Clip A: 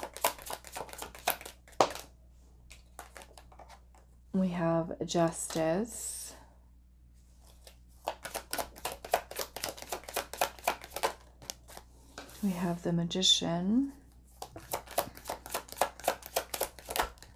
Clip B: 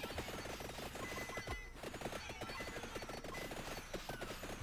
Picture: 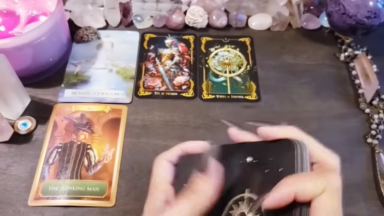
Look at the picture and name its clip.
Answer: A